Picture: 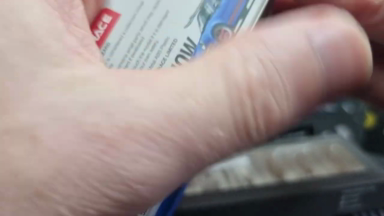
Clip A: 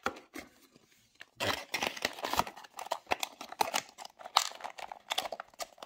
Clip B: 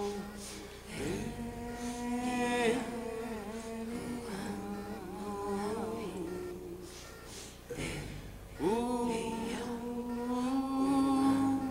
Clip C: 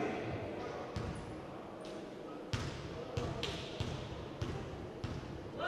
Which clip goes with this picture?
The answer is A